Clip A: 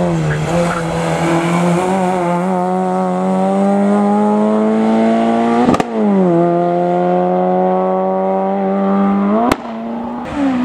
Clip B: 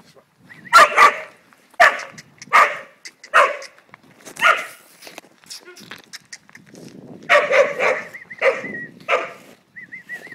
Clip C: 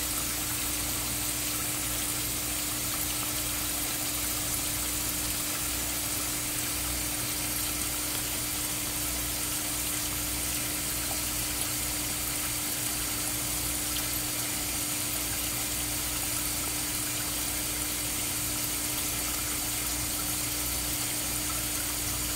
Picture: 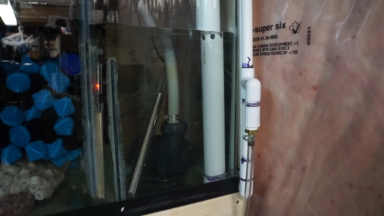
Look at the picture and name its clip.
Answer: C